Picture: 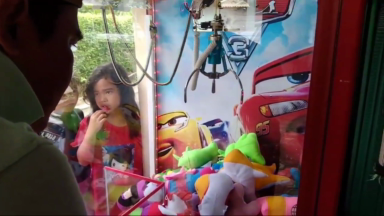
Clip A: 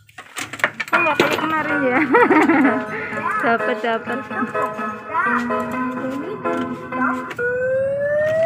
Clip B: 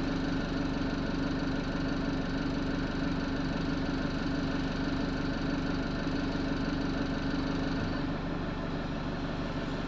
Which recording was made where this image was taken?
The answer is A